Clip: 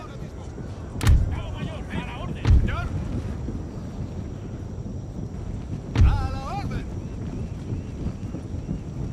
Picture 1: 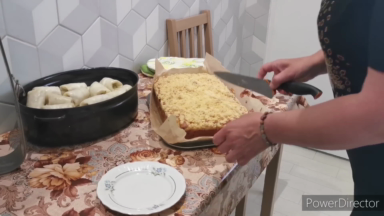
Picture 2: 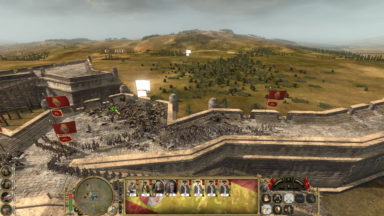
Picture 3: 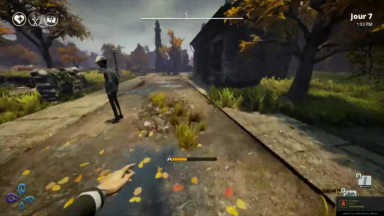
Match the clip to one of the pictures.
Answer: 2